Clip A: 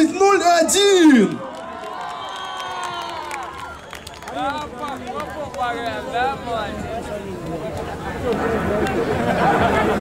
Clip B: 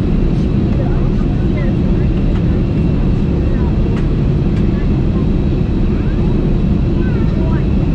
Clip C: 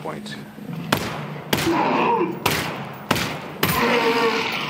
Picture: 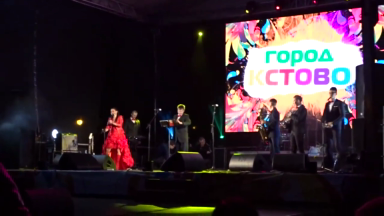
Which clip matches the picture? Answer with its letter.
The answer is A